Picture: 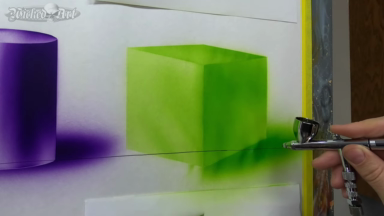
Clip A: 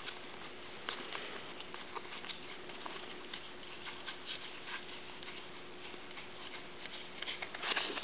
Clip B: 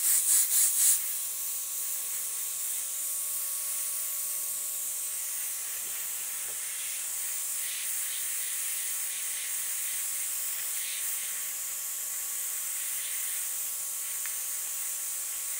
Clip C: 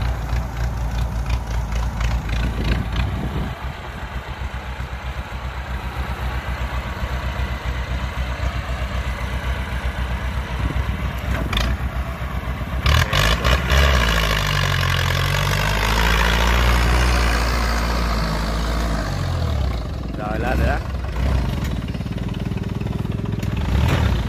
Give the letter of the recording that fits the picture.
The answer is B